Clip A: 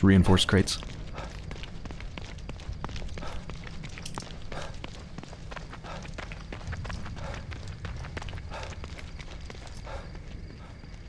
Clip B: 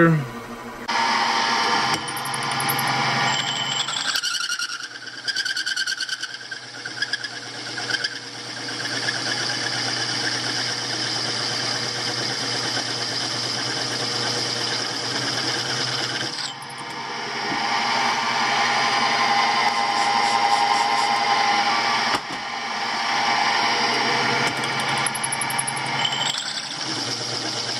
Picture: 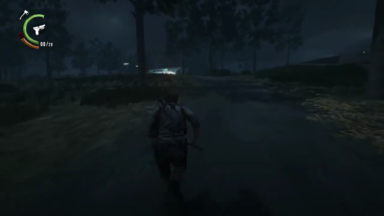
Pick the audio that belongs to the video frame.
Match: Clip A